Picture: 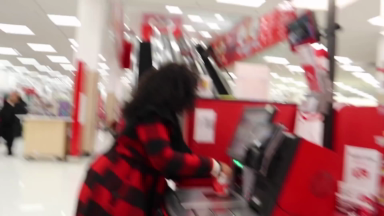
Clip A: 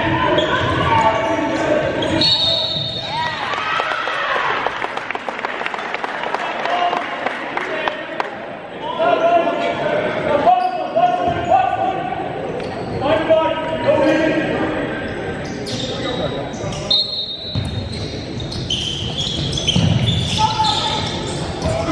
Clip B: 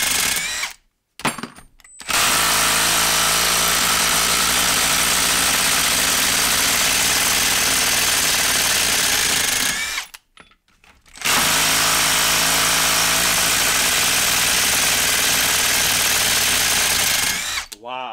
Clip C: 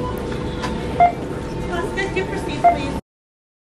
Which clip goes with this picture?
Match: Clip C